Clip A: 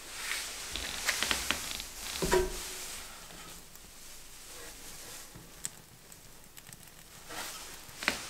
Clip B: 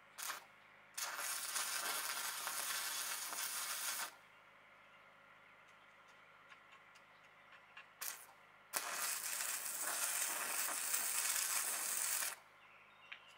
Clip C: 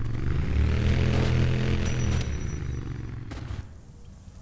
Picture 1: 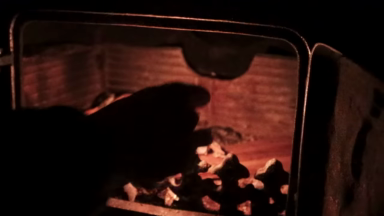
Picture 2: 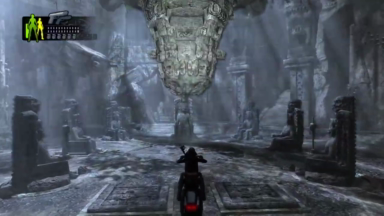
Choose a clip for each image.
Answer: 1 A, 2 C